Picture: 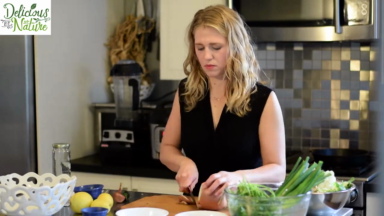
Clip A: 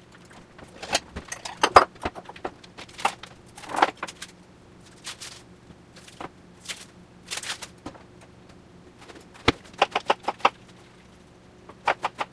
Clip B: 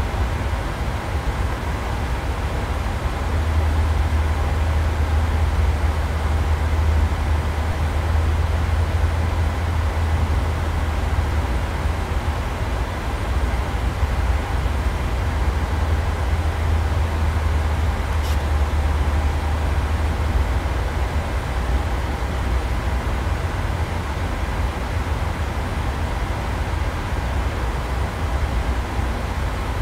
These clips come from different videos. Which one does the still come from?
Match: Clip A